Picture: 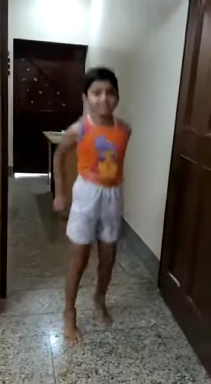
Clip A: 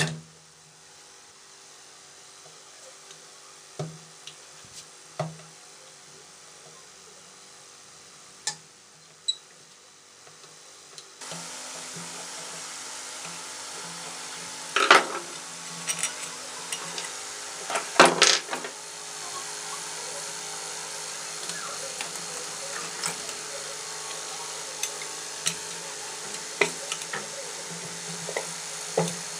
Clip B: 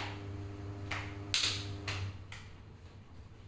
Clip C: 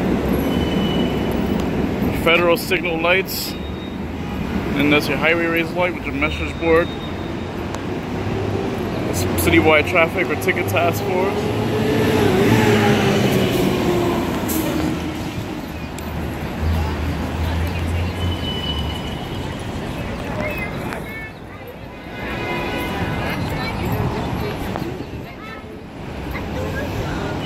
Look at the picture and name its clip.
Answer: B